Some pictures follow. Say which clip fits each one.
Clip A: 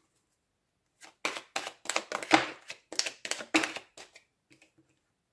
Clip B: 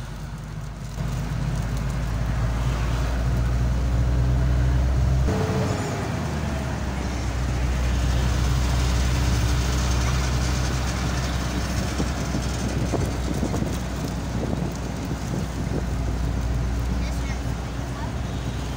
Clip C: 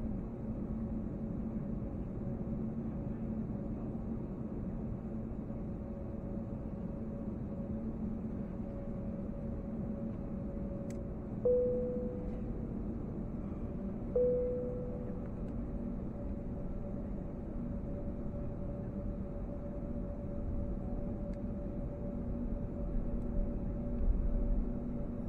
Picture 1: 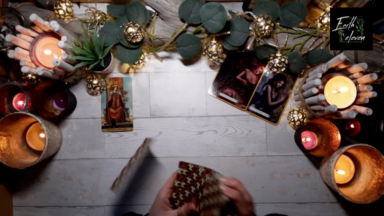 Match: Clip A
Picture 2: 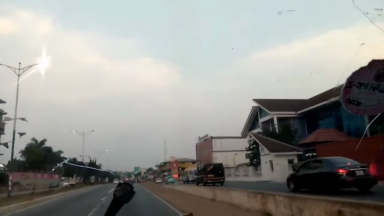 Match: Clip B